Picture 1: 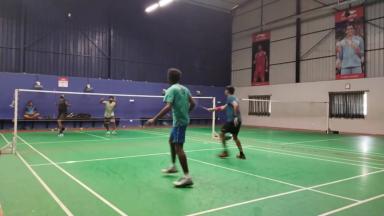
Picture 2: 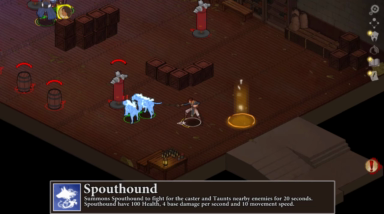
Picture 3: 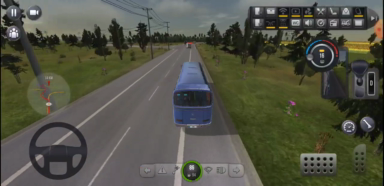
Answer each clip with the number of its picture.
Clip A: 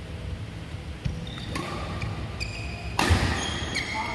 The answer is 1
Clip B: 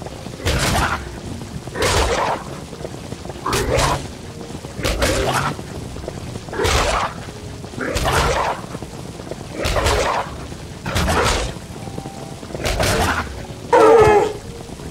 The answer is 2